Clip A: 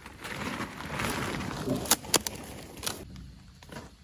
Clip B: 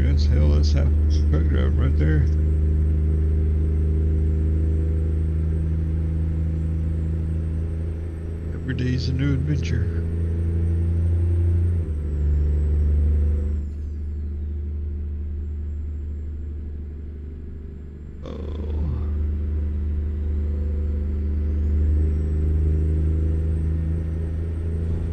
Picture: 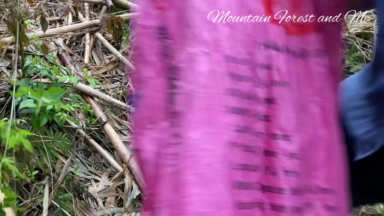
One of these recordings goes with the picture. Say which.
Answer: A